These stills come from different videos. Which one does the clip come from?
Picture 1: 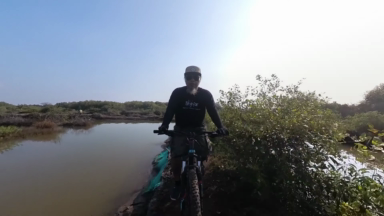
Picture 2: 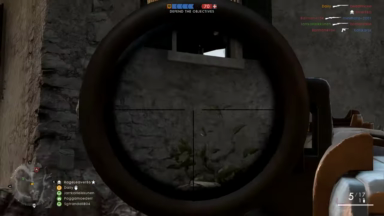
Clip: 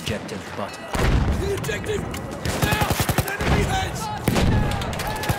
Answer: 2